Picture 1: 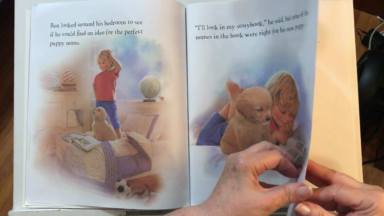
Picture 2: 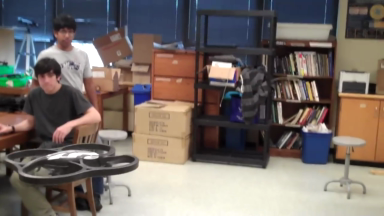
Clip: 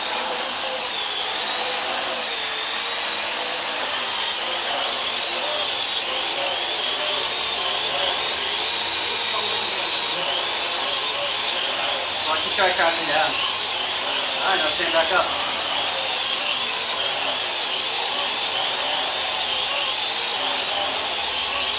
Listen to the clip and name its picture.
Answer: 2